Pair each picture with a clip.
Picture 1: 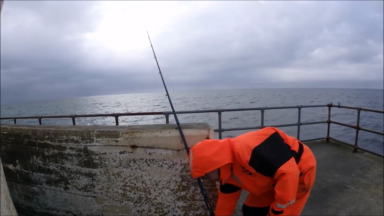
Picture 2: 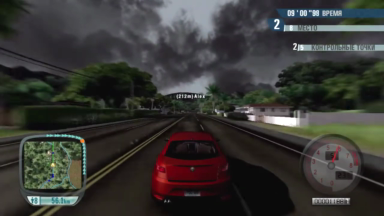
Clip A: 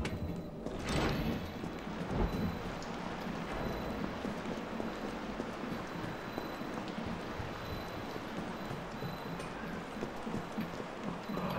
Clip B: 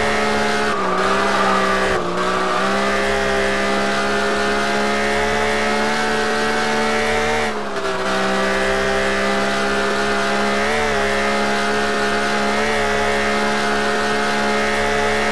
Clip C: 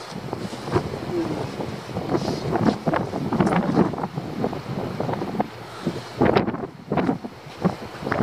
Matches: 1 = C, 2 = B